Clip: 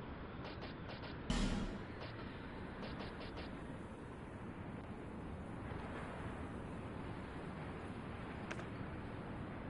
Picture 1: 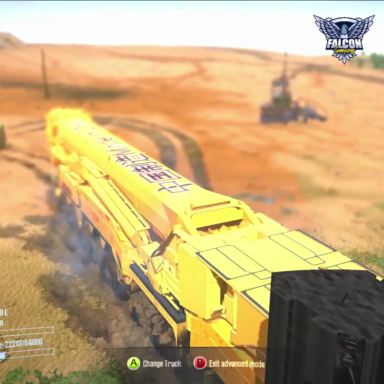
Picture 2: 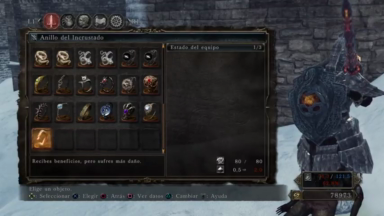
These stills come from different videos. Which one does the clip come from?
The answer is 2